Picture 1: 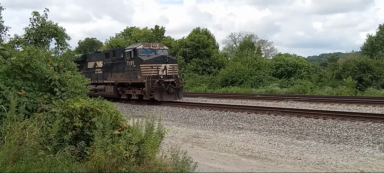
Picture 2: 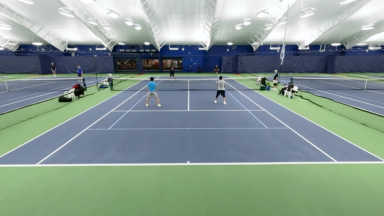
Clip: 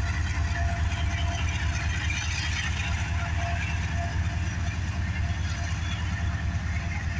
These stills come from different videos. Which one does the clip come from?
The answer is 1